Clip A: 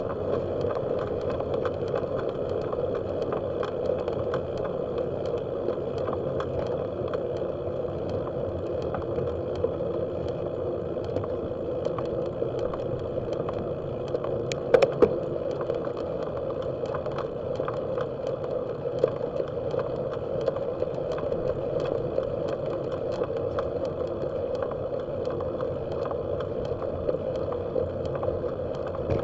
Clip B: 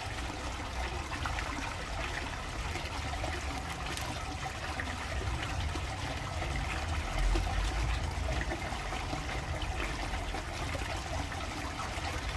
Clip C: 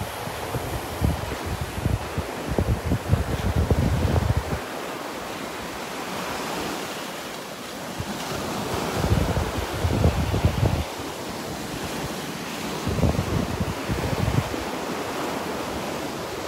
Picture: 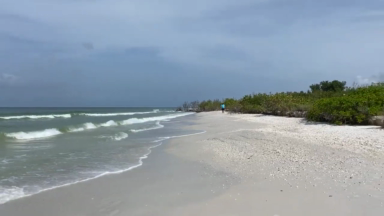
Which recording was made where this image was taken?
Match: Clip C